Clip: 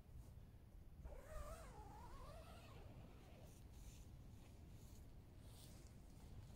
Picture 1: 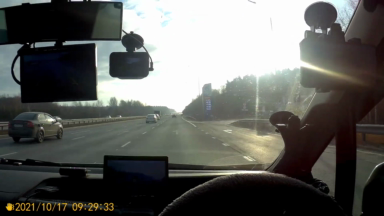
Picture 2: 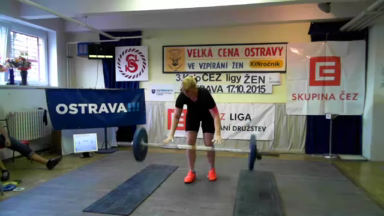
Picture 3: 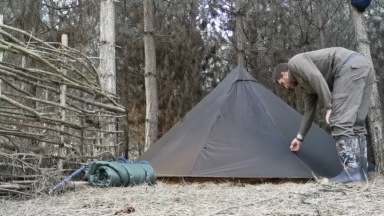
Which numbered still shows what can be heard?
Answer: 3